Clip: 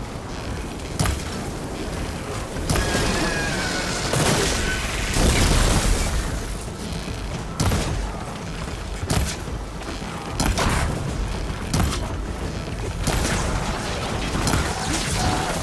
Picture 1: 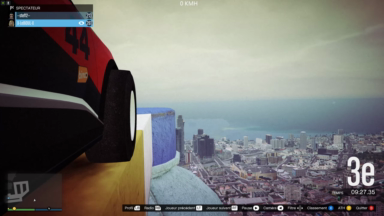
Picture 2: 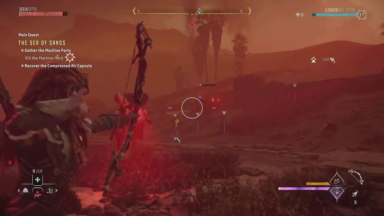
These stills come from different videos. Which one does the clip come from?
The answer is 2